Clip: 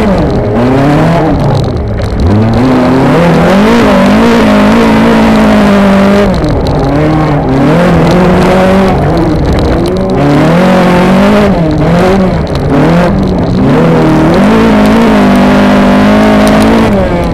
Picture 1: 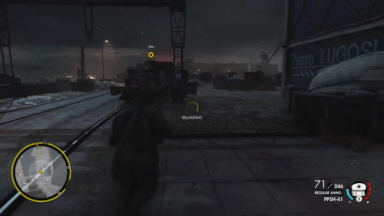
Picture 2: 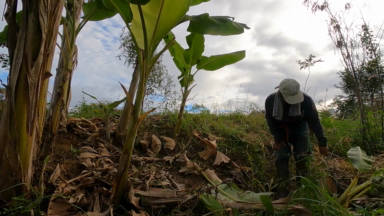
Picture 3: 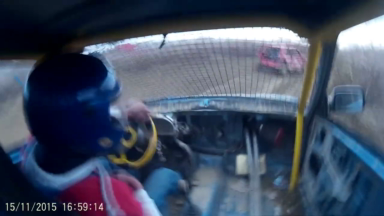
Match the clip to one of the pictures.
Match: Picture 3